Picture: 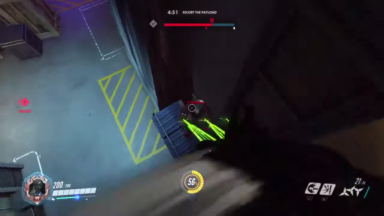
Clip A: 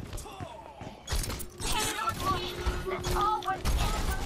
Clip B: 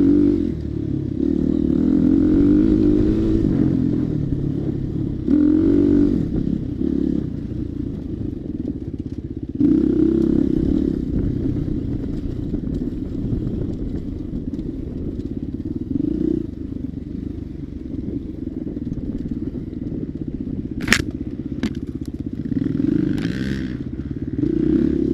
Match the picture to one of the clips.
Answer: A